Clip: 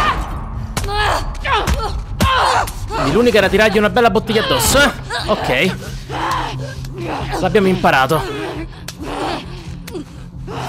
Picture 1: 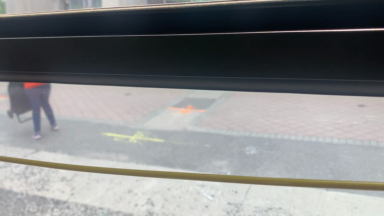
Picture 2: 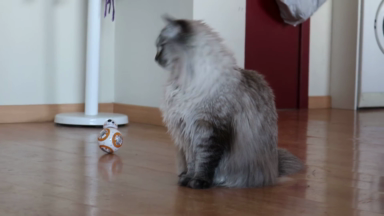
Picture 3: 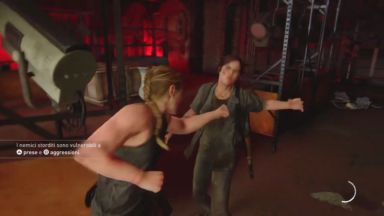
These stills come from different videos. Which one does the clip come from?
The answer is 3